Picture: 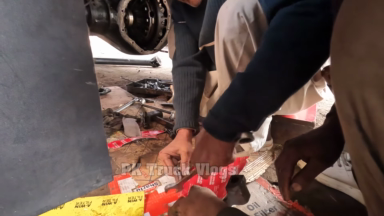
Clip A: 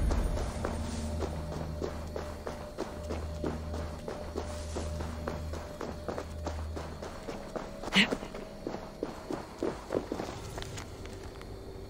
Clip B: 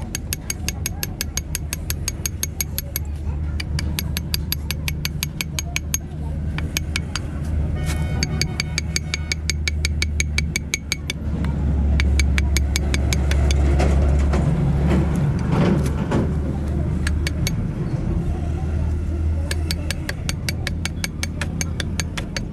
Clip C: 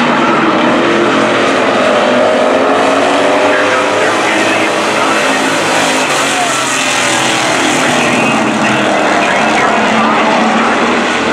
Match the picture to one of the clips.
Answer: B